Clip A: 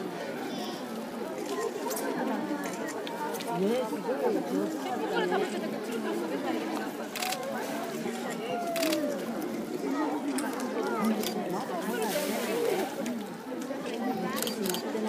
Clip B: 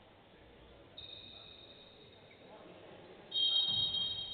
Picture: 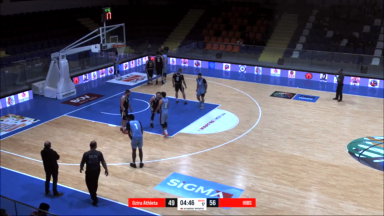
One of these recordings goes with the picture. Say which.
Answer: B